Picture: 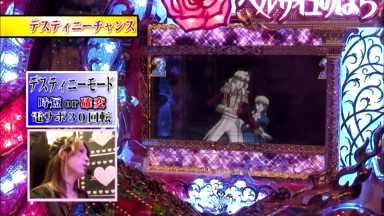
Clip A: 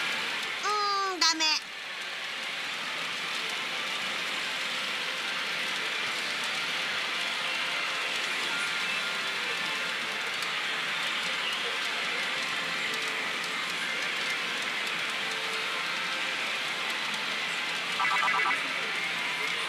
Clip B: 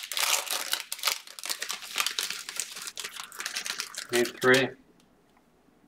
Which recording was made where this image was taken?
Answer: A